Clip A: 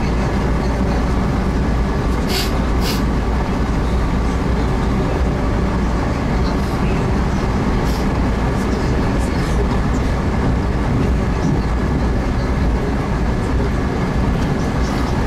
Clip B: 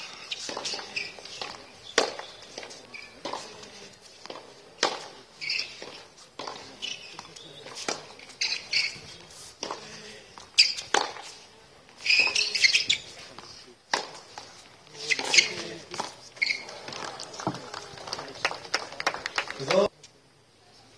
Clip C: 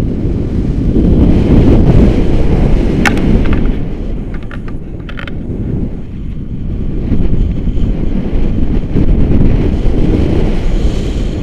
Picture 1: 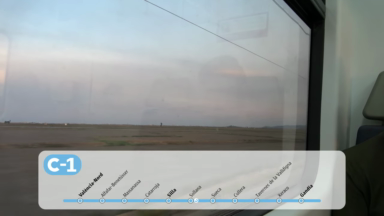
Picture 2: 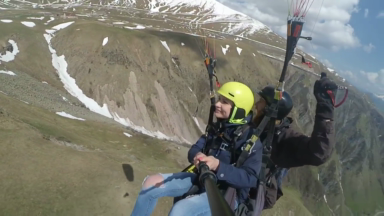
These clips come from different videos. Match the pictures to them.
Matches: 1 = A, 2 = C